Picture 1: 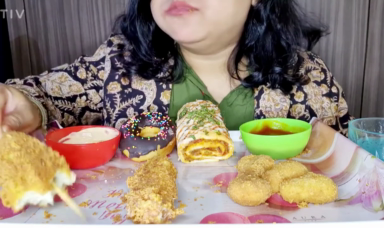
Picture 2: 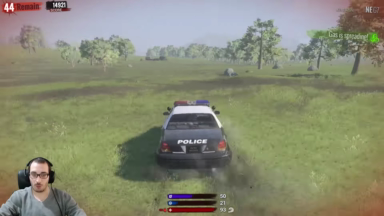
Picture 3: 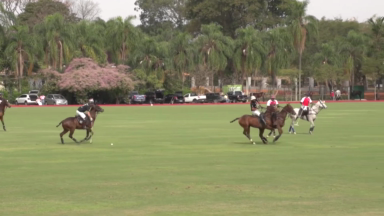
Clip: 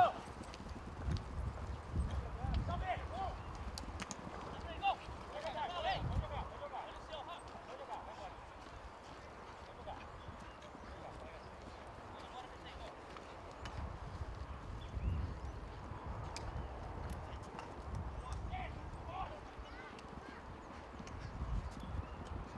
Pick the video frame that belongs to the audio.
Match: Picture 3